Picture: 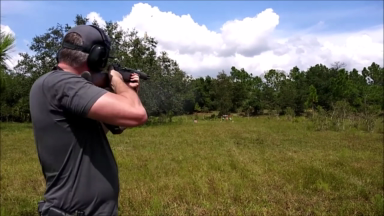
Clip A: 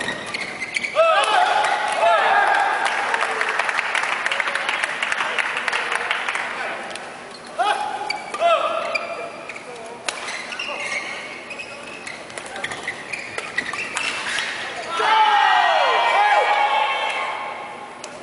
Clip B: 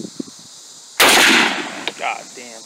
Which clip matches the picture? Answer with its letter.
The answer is B